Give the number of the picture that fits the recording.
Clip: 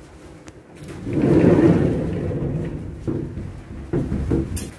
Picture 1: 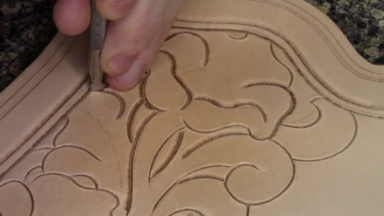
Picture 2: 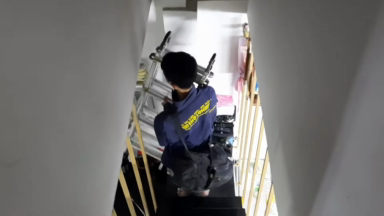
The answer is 2